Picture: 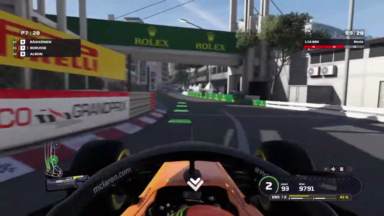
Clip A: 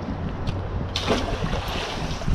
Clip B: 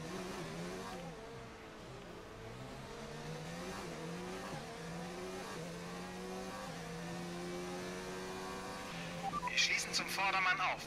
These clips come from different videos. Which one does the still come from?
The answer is B